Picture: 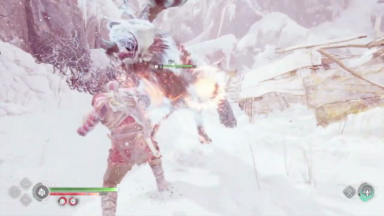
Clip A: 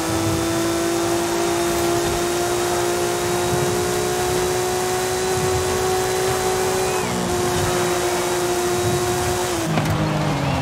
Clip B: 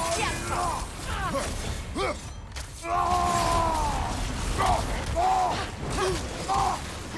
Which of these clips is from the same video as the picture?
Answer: B